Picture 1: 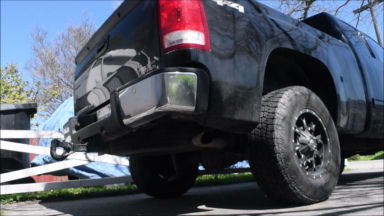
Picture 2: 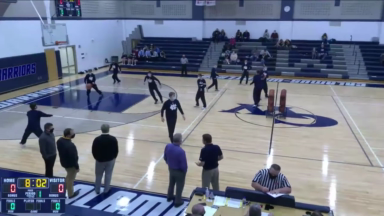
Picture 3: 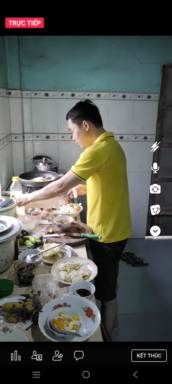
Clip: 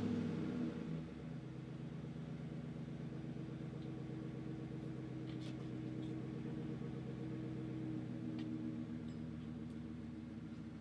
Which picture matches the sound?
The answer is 1